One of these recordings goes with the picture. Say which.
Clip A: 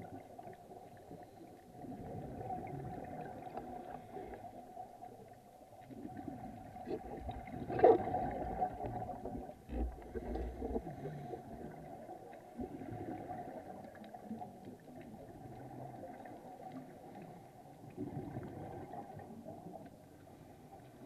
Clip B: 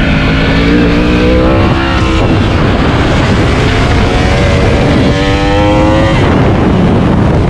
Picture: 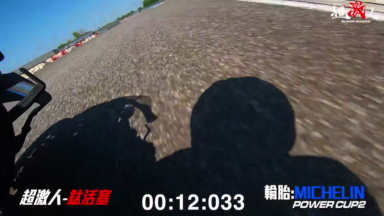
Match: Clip B